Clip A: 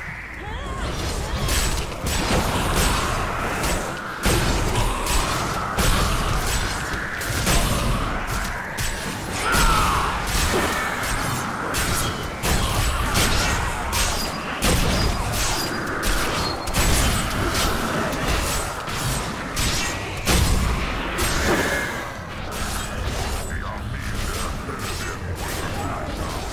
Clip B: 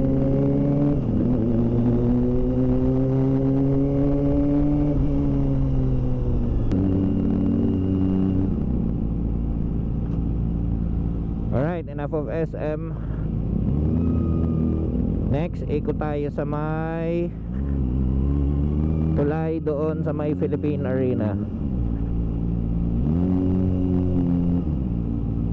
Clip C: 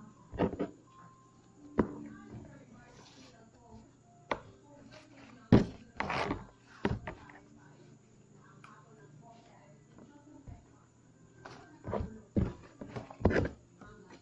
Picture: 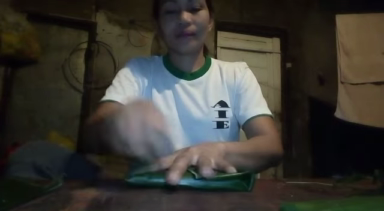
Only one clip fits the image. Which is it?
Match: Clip C